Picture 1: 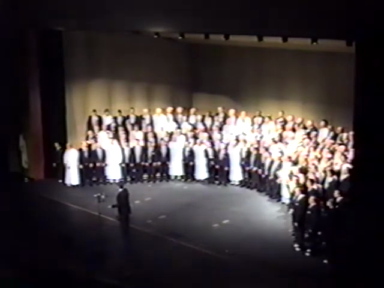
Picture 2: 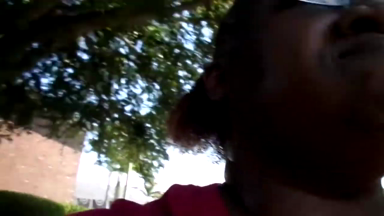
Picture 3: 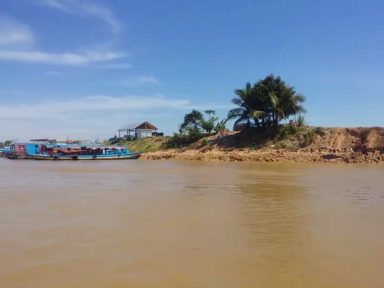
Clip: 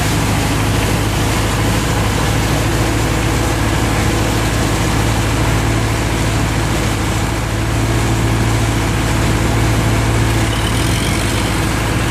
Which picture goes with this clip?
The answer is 3